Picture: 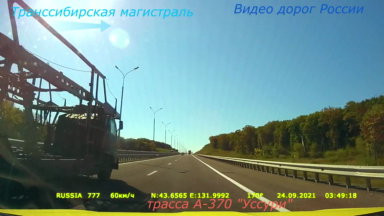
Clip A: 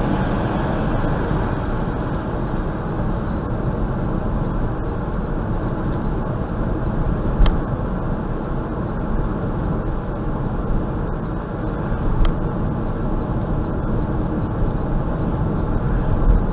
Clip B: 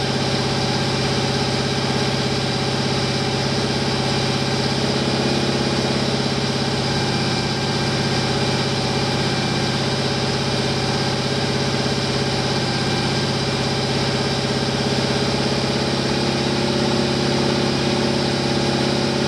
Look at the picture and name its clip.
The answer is A